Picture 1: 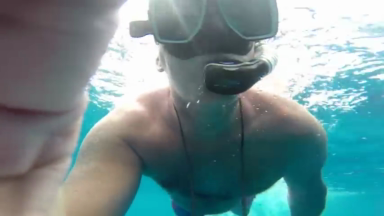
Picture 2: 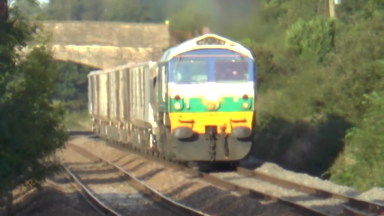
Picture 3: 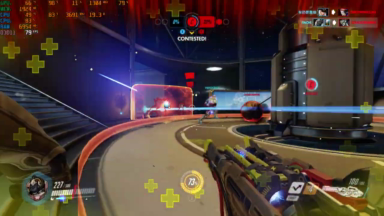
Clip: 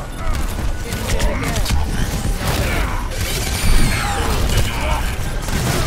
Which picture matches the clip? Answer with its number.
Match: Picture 3